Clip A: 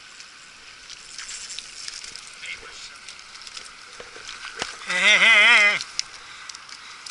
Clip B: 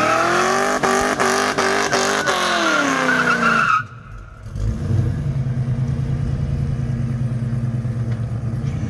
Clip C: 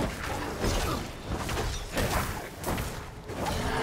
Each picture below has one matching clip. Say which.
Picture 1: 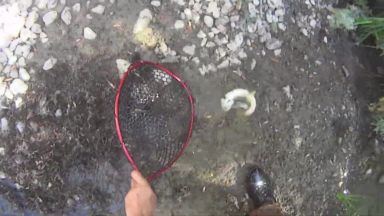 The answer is A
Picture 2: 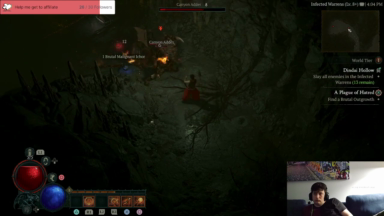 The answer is C